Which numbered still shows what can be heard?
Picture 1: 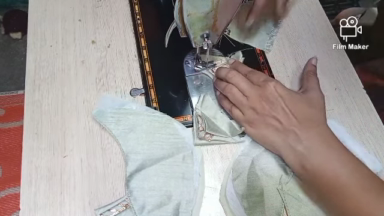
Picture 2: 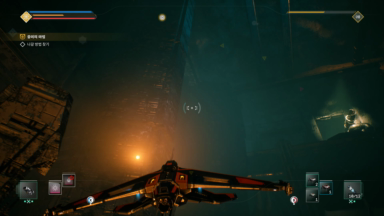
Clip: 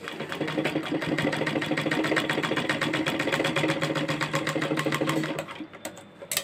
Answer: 1